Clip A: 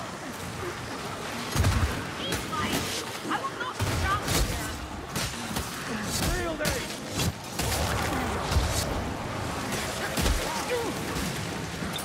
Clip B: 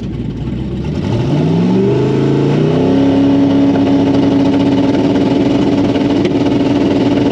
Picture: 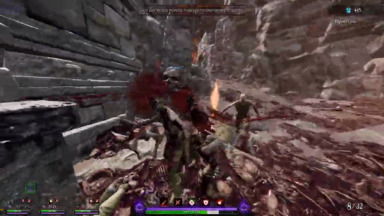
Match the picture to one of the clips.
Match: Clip A